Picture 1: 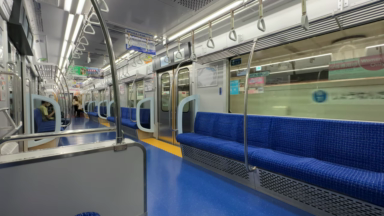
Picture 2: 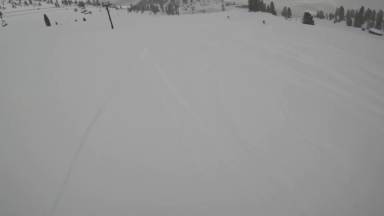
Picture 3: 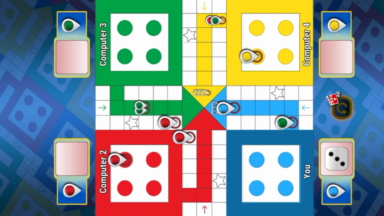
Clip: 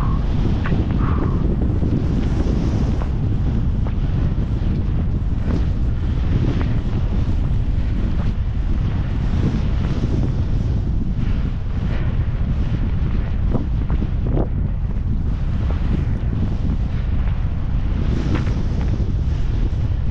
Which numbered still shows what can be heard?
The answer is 2